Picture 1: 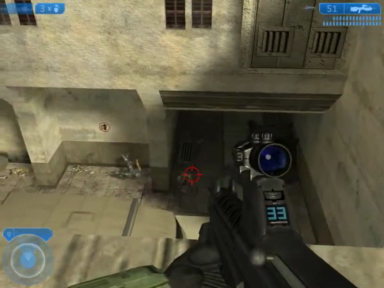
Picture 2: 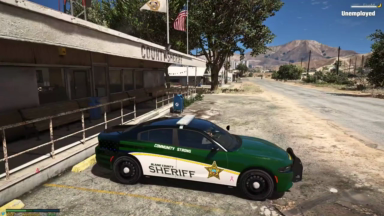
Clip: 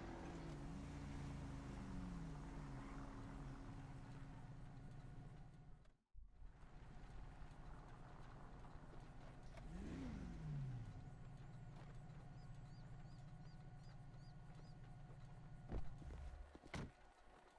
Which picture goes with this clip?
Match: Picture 2